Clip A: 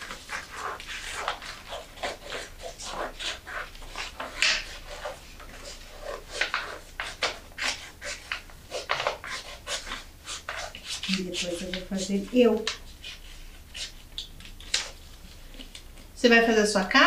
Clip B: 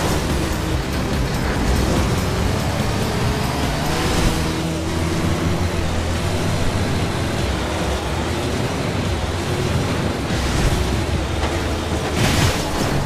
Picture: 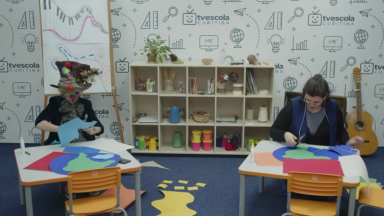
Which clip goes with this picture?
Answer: A